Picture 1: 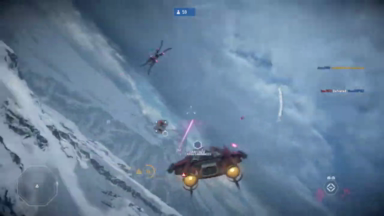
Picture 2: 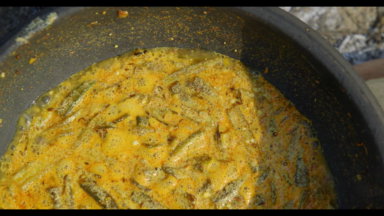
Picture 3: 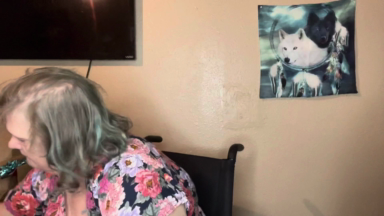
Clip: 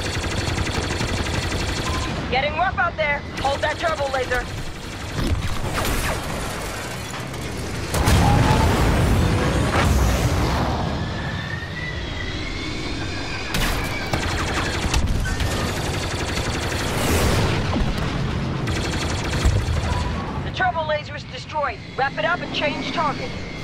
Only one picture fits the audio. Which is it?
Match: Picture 1